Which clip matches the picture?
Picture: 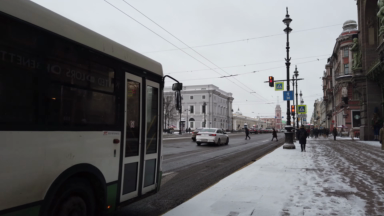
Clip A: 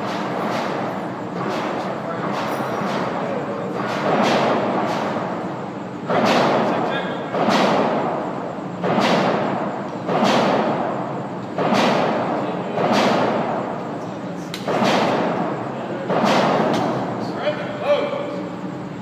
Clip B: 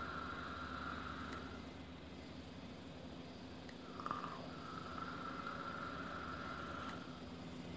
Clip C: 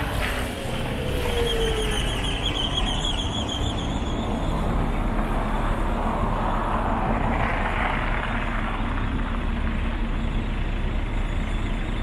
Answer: C